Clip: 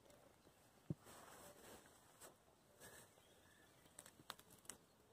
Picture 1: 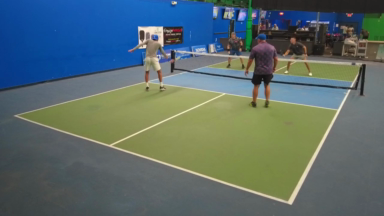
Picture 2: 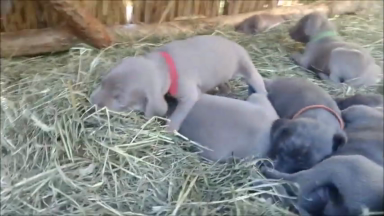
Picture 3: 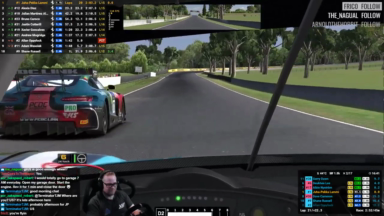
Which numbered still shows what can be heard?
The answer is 2